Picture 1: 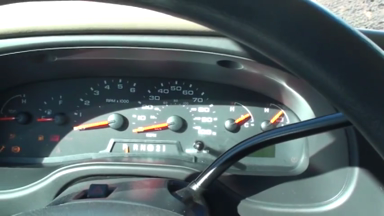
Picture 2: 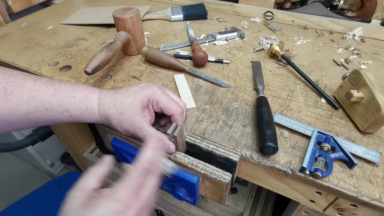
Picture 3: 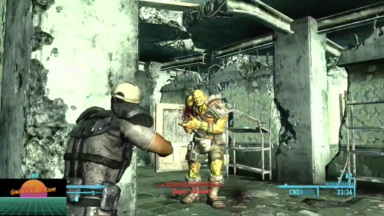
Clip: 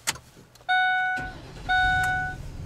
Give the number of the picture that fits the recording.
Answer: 1